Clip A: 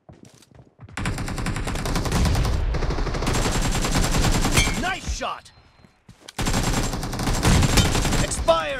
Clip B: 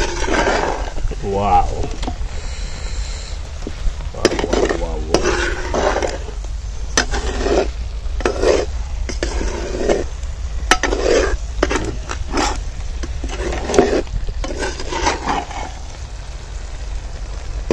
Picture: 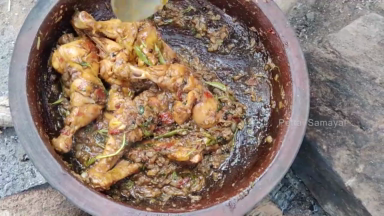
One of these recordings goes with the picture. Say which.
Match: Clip B